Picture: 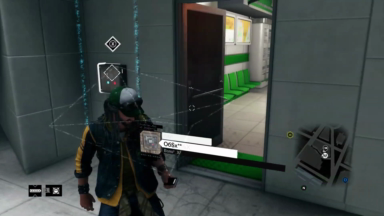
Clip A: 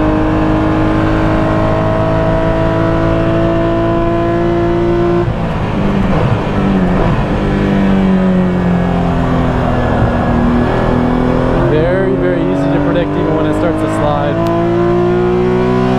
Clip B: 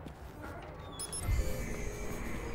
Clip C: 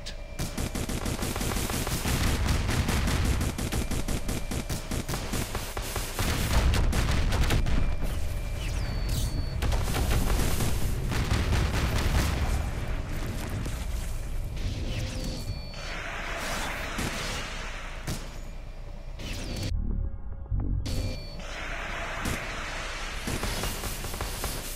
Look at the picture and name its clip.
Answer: B